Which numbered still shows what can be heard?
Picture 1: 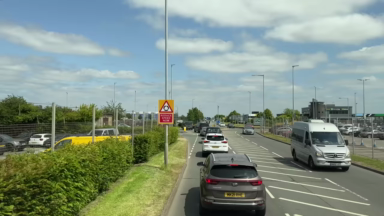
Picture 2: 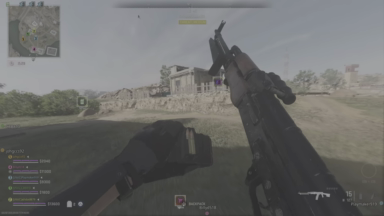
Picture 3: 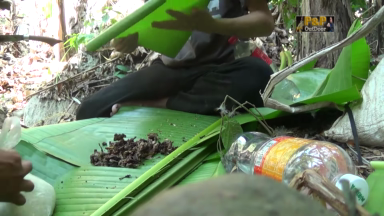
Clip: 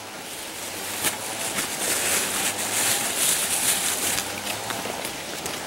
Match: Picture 3